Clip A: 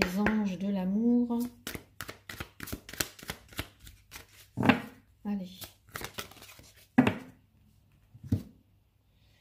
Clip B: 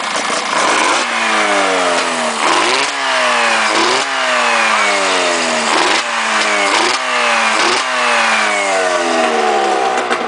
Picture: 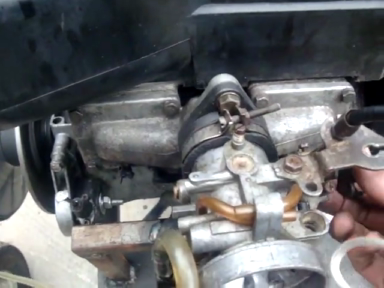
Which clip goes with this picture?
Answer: B